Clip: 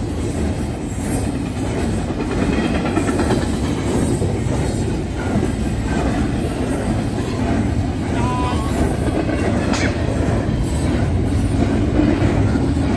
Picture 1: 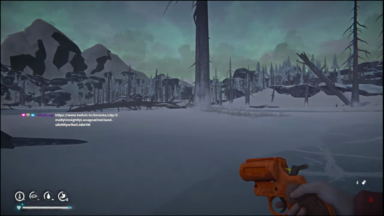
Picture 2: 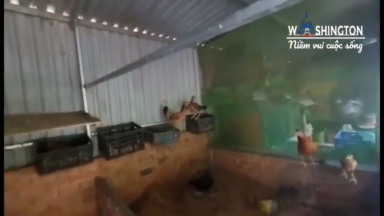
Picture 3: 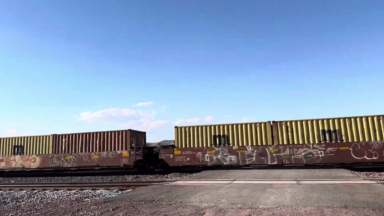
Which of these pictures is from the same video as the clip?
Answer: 3